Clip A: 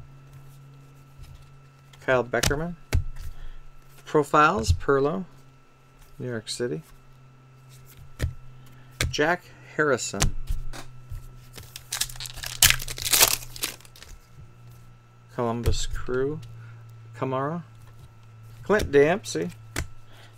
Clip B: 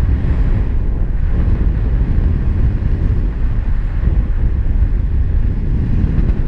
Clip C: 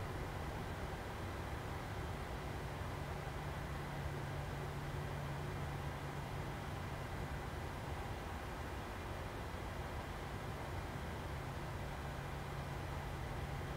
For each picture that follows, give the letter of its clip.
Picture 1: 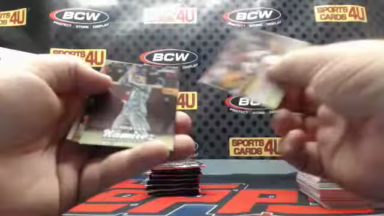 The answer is A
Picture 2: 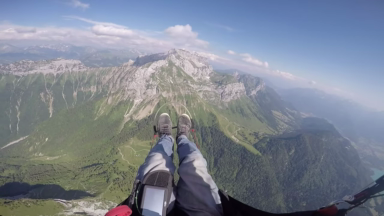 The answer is B